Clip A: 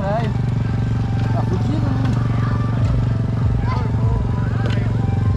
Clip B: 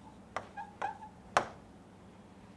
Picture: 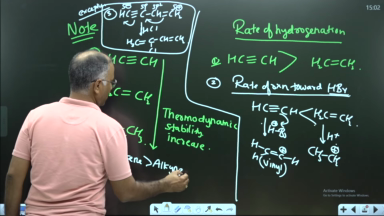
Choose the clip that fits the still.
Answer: B